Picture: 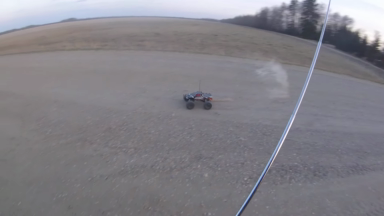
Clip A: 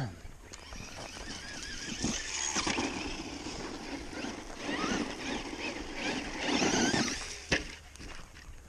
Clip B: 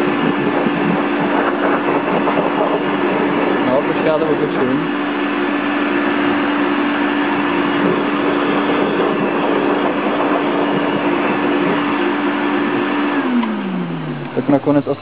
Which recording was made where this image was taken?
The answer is A